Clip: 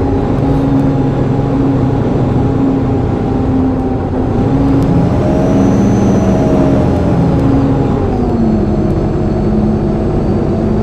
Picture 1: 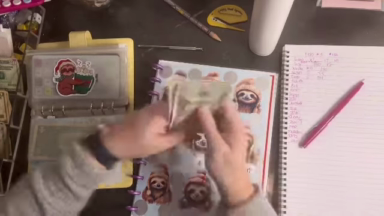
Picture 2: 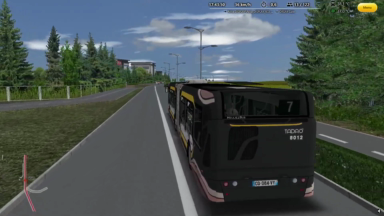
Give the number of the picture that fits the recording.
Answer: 2